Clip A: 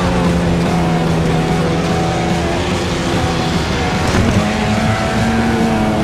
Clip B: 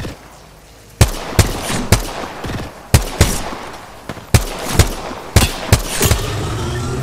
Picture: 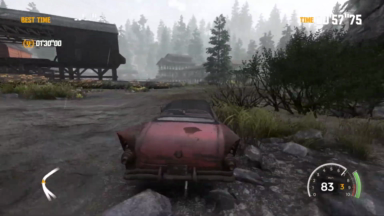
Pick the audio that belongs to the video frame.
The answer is A